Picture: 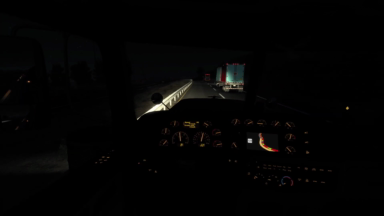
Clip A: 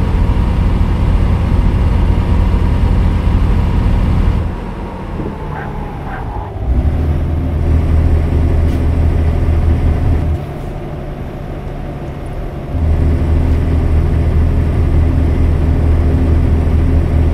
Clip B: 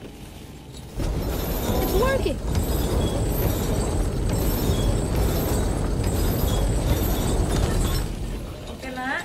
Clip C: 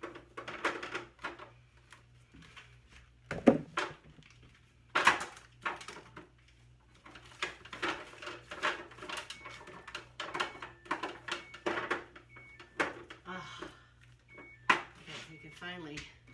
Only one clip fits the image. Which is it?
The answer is A